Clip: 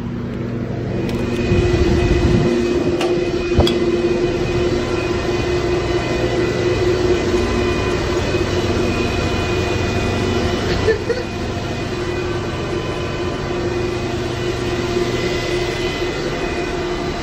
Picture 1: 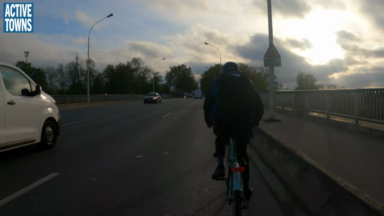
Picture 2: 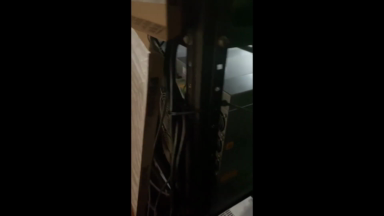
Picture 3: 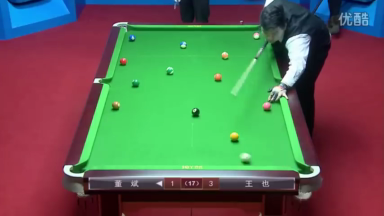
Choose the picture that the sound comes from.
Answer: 2